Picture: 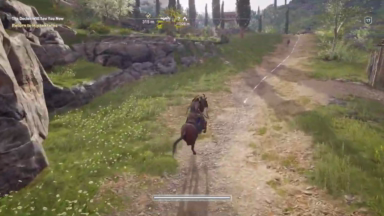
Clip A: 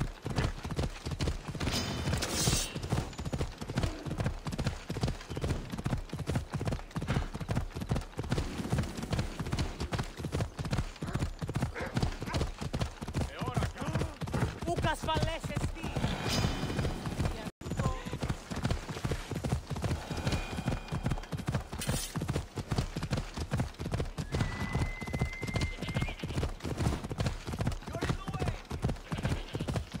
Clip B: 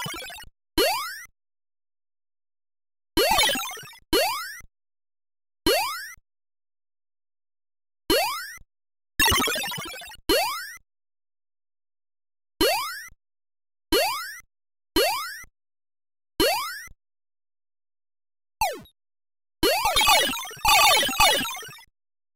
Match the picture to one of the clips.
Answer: A